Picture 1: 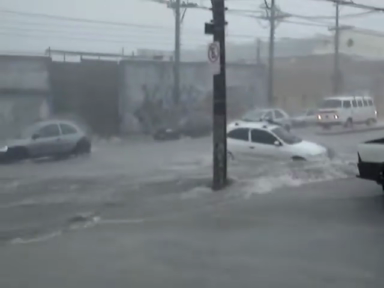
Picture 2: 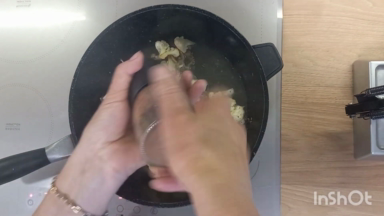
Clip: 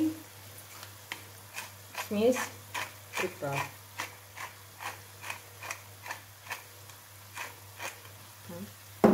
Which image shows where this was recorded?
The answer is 2